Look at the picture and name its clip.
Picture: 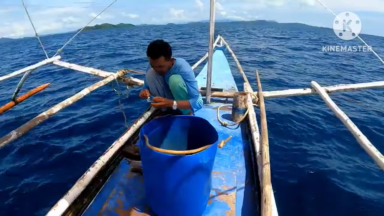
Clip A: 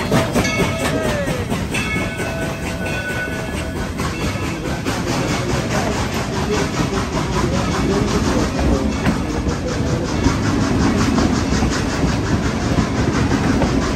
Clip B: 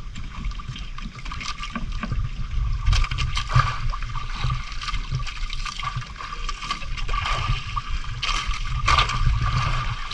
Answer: B